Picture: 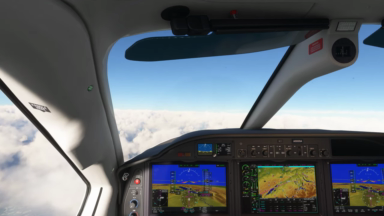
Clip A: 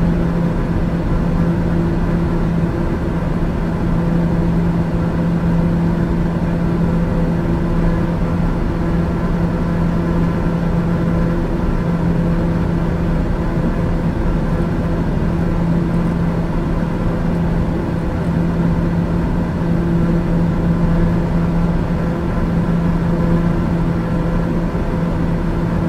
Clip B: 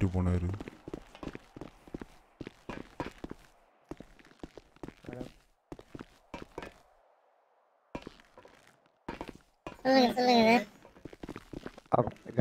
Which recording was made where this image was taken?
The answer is A